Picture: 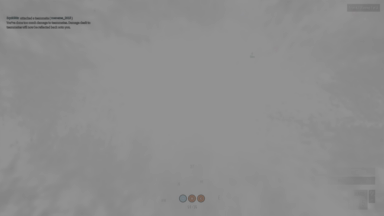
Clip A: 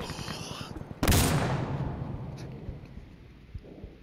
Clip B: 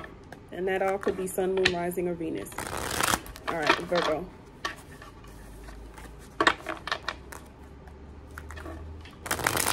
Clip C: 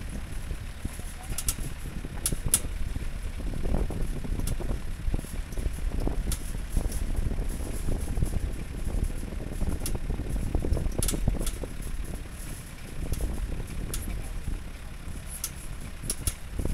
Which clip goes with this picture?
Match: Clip A